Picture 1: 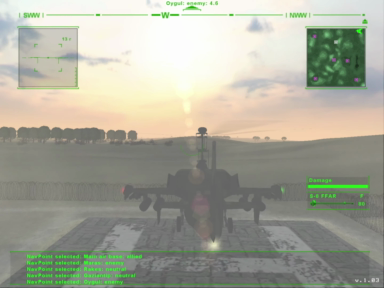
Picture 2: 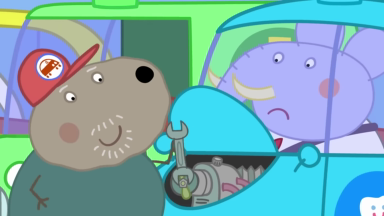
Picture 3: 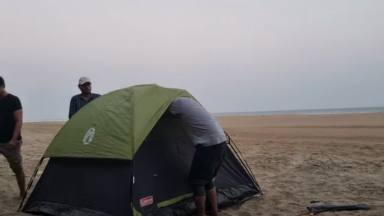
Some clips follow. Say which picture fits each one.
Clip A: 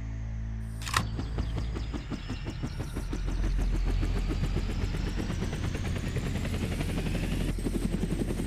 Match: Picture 1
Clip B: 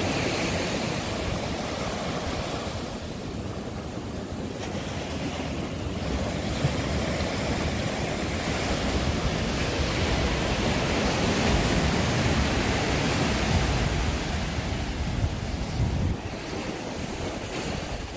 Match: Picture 3